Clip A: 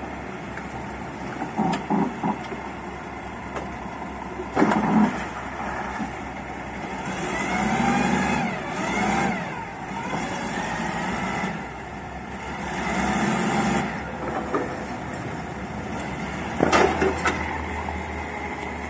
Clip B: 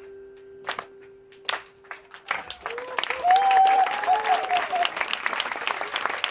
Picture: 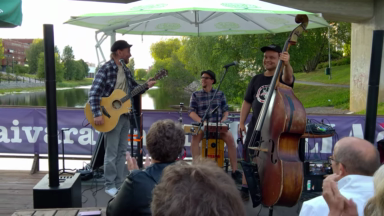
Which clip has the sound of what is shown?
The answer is B